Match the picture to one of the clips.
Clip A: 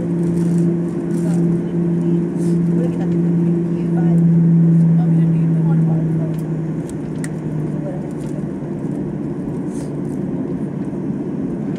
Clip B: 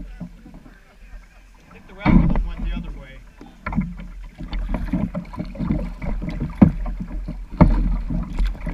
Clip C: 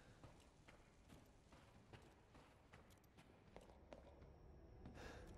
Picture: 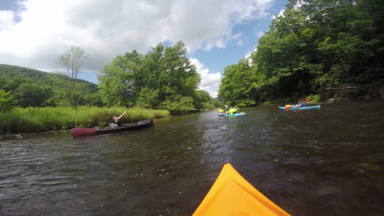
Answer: B